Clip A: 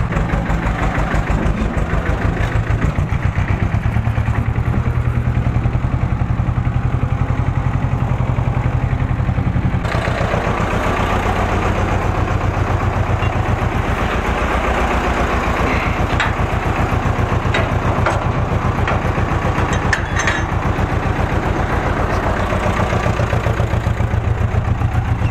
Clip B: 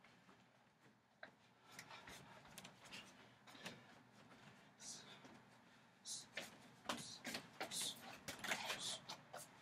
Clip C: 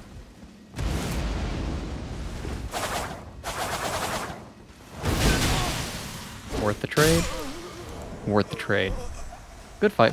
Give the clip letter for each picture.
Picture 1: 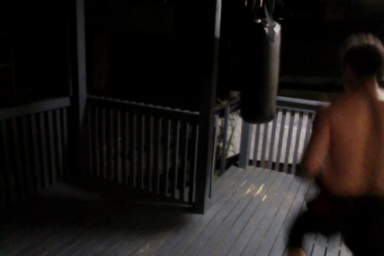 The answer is B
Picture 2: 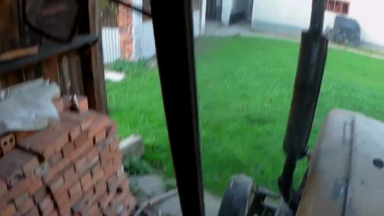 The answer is A